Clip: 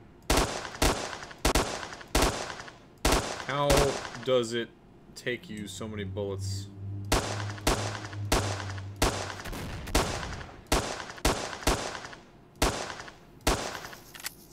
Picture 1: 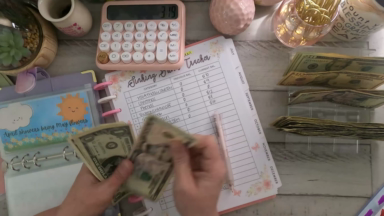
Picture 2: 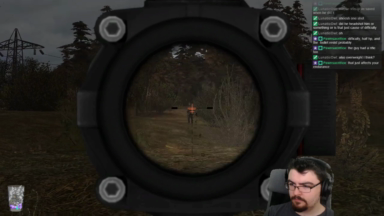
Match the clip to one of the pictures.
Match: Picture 2